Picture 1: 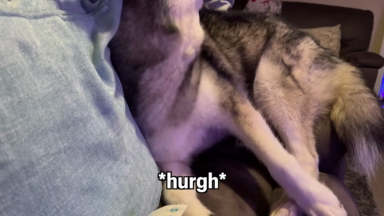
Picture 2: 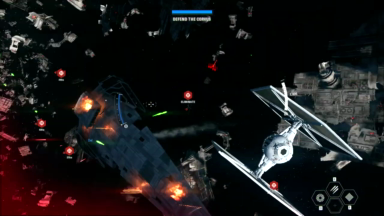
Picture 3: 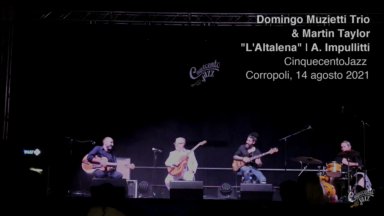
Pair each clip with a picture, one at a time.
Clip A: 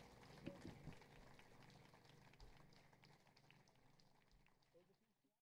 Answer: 3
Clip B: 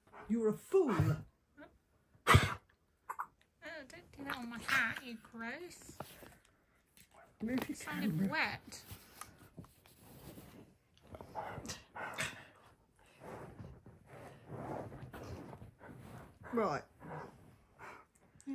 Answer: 1